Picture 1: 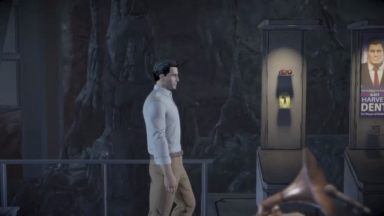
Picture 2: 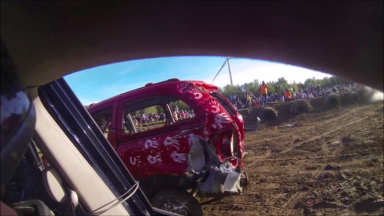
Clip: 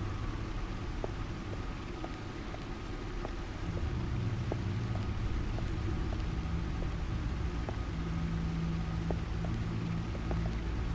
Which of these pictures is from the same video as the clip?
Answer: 1